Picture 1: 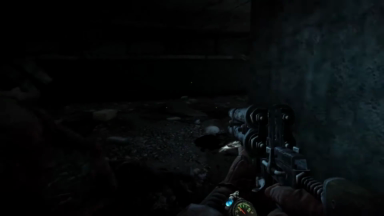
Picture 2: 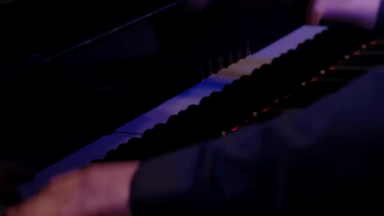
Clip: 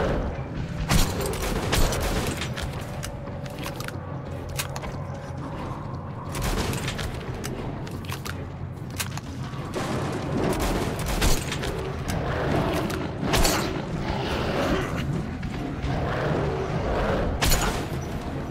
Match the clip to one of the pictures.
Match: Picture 1